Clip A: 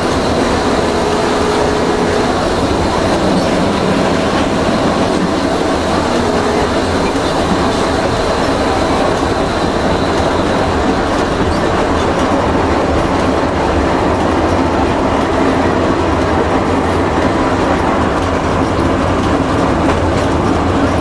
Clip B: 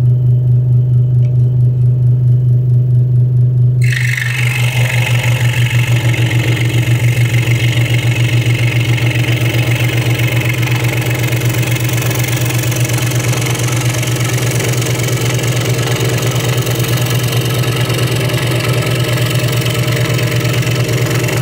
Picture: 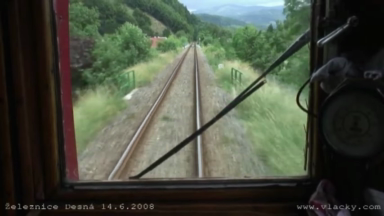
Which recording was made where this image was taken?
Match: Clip A